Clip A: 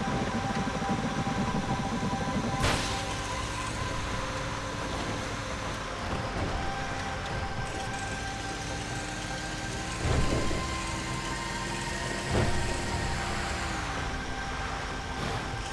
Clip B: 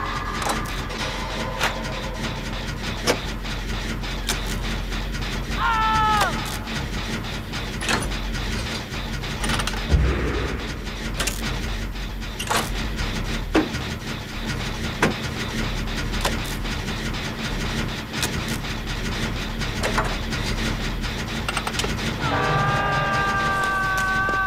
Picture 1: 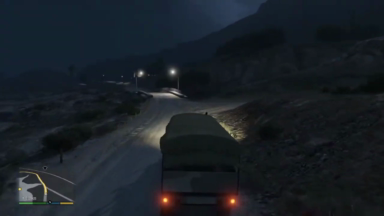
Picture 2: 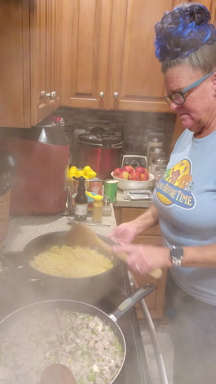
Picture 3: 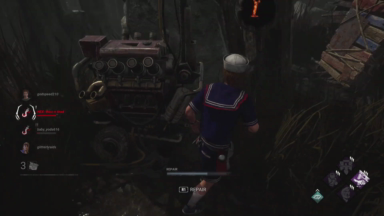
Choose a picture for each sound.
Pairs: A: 1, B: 3